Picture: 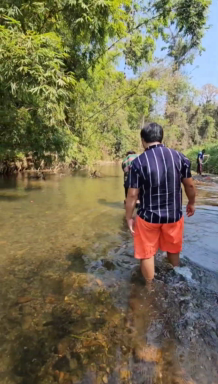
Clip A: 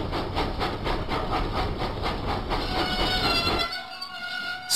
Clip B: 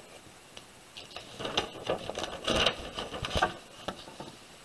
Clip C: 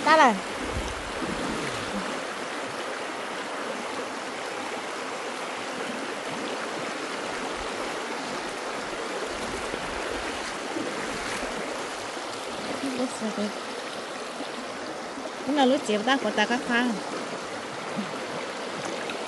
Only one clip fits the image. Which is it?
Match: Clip C